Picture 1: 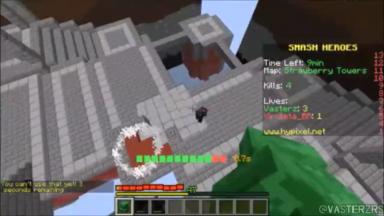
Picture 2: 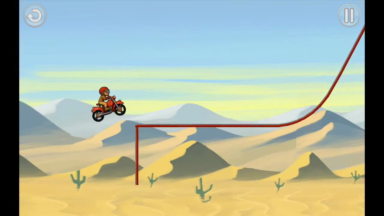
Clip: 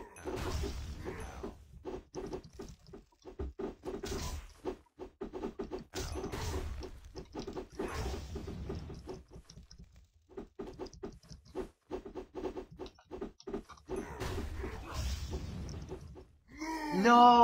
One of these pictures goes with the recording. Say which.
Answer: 1